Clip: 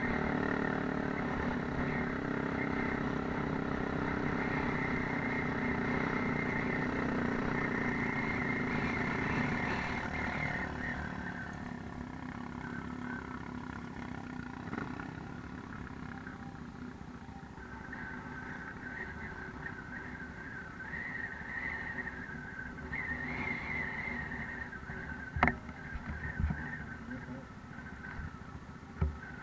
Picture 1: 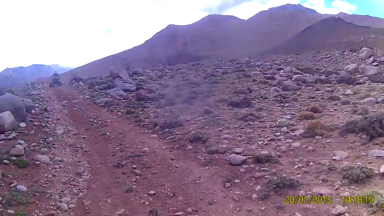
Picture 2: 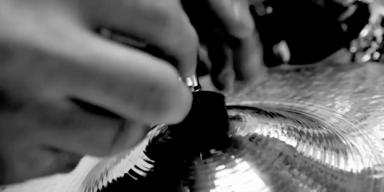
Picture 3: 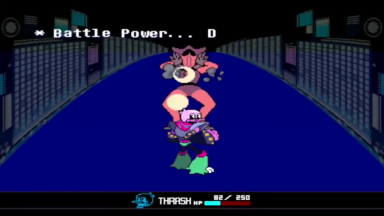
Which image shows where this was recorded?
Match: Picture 1